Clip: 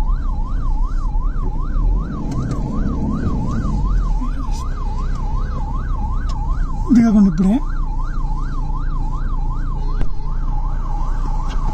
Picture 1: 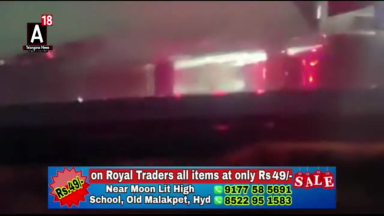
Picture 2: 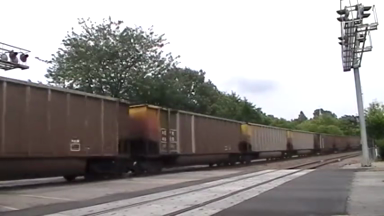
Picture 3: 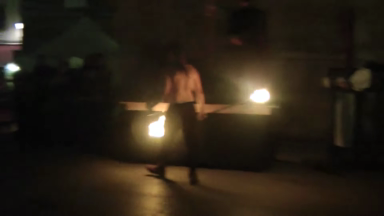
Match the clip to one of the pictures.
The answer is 1